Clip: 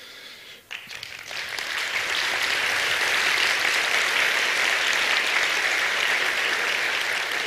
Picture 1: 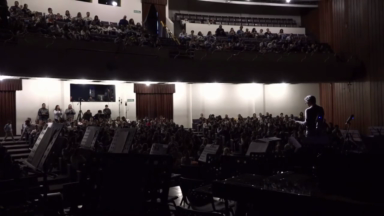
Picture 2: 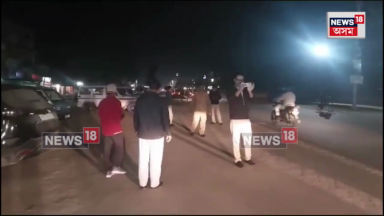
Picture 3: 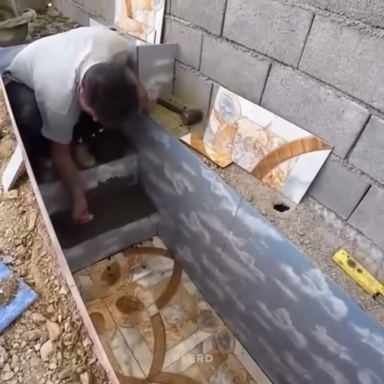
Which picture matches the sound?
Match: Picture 1